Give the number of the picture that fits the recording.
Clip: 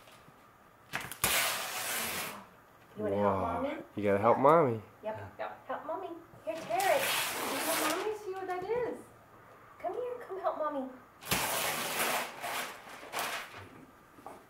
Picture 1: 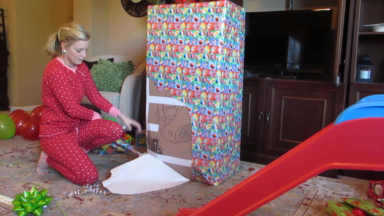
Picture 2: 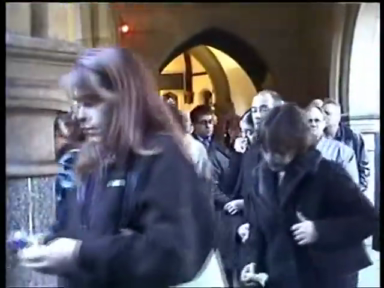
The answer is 1